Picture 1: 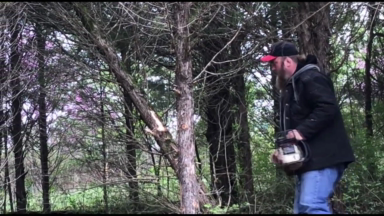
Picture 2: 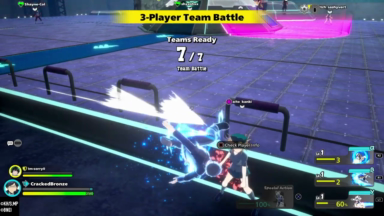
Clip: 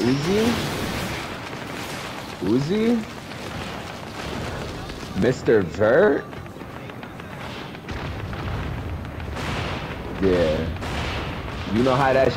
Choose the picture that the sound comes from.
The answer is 2